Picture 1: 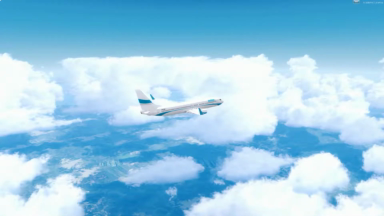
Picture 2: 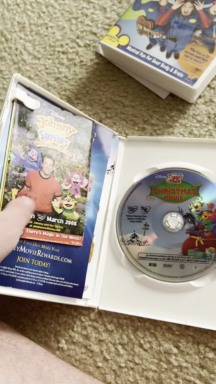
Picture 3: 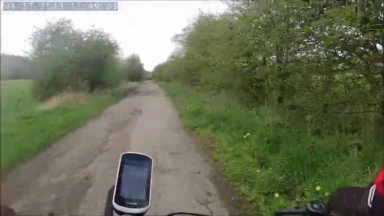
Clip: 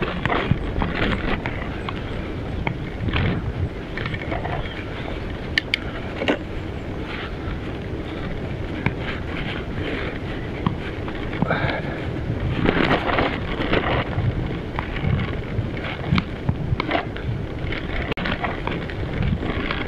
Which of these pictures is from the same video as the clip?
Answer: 3